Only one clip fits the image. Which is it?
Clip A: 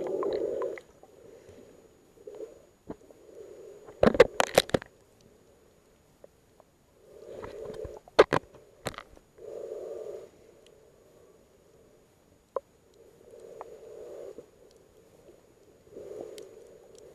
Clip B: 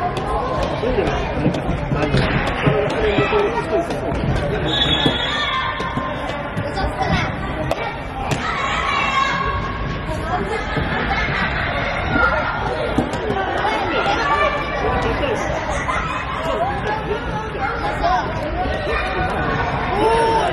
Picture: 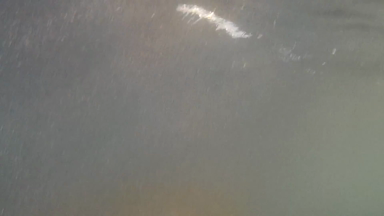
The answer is A